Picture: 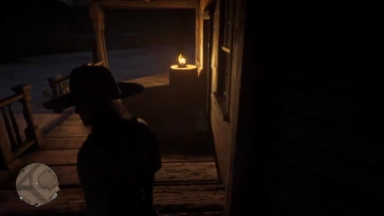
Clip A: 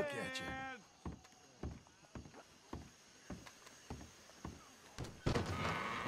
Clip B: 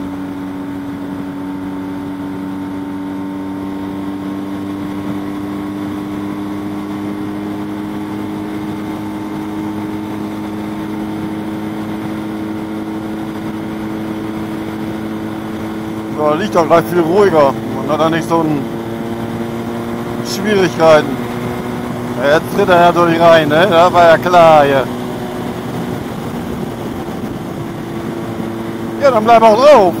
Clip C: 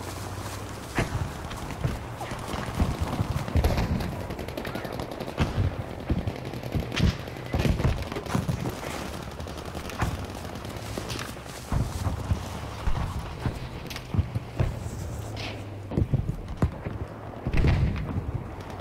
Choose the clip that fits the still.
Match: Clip A